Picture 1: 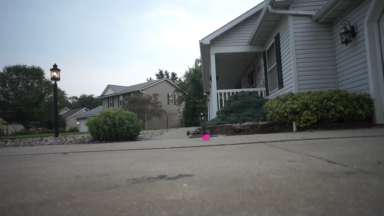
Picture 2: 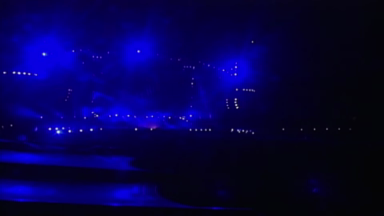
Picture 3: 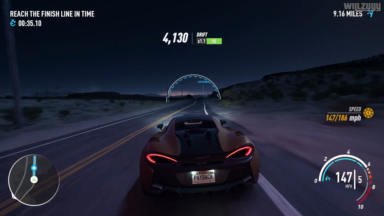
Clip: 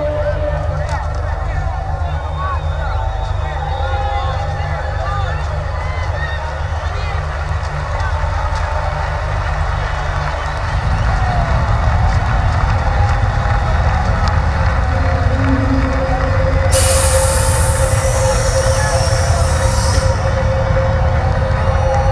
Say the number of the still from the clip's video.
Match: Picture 2